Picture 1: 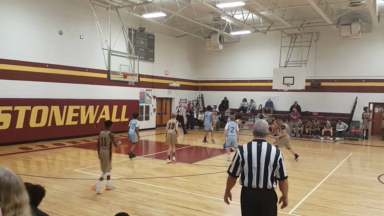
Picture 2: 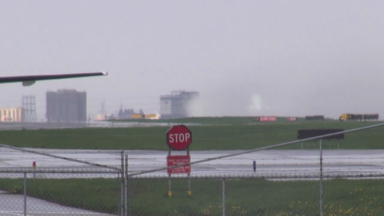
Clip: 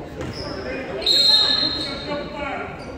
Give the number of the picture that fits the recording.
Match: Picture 1